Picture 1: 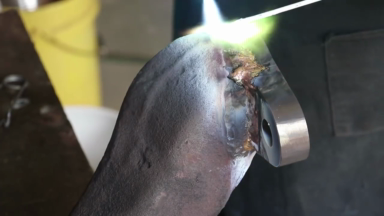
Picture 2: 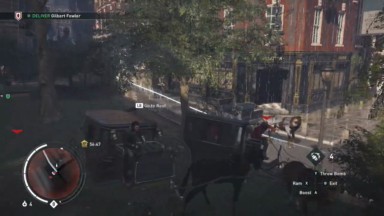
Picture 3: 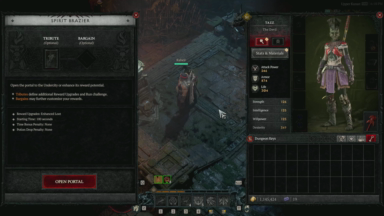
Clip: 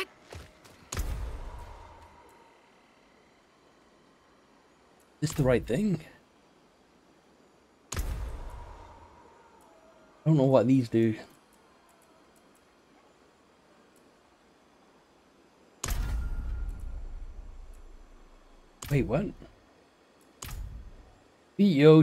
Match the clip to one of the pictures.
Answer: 3